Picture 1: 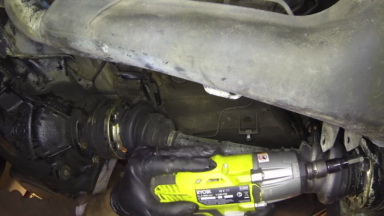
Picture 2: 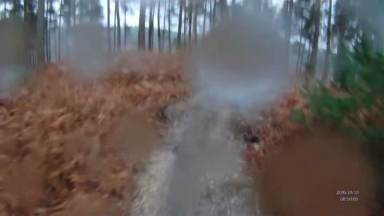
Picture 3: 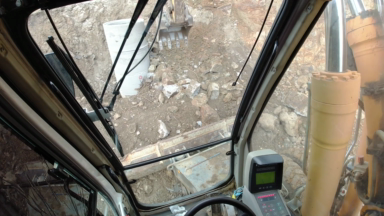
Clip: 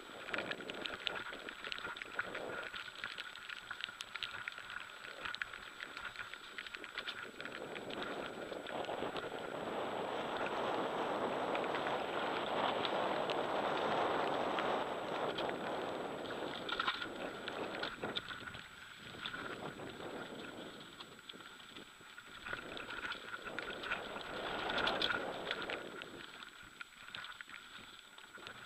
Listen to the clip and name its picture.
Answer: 2